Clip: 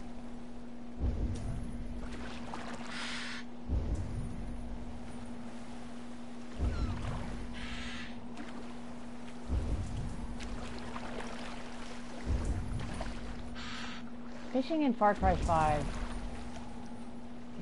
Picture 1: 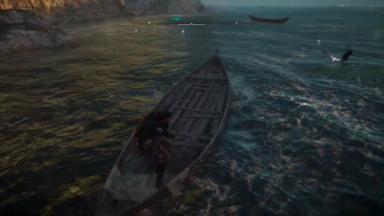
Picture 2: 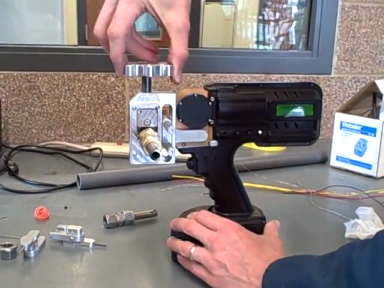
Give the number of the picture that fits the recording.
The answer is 1